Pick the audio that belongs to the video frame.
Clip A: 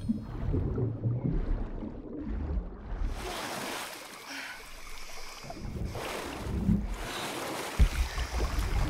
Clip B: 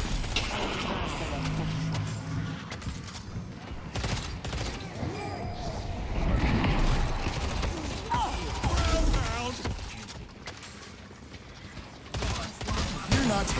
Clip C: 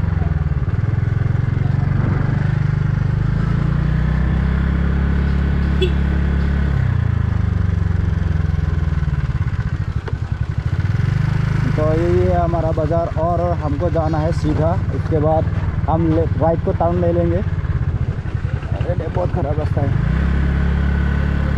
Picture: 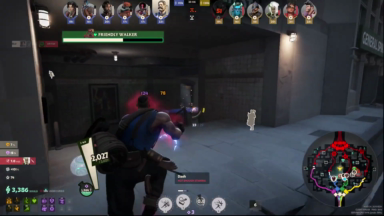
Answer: B